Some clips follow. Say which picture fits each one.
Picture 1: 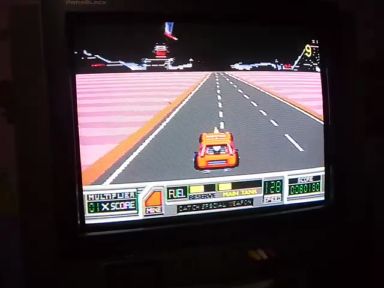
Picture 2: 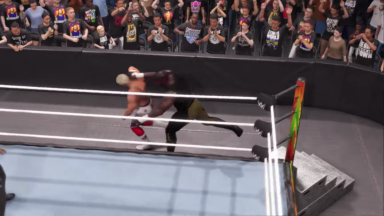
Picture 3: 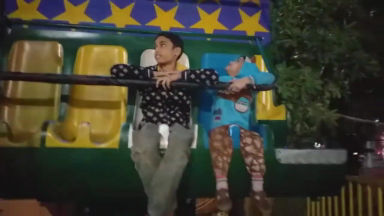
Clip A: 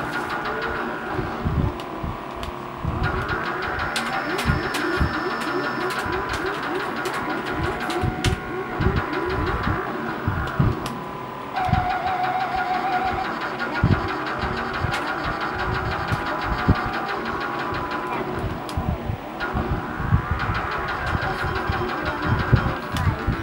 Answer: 1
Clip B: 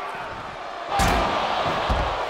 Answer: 2